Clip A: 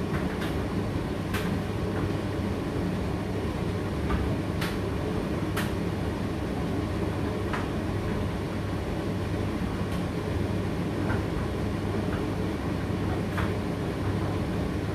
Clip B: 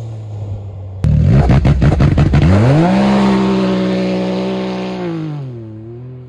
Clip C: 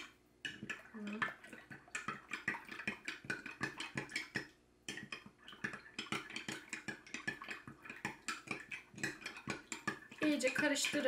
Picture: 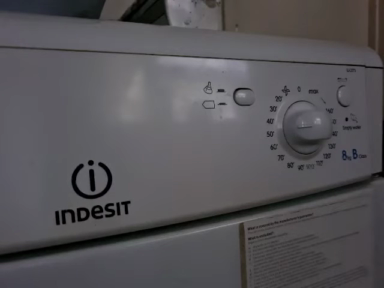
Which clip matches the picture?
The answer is A